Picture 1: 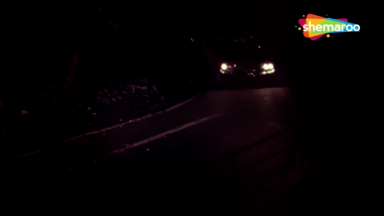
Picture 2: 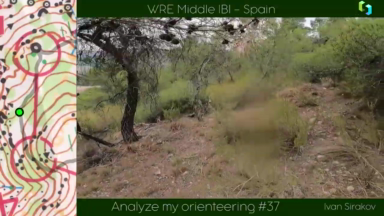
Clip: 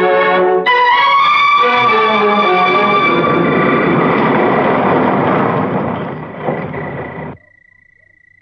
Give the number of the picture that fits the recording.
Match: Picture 1